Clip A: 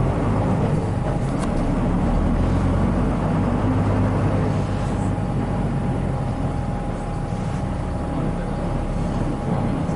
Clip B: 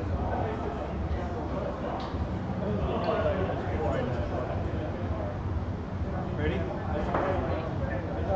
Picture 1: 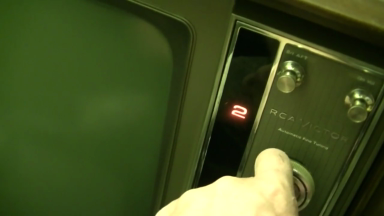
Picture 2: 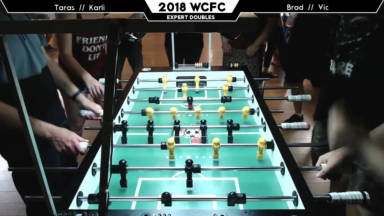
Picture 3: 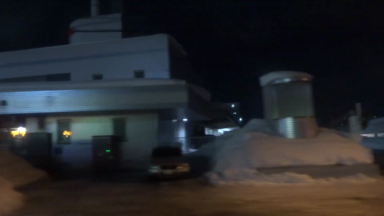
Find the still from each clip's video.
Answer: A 3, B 2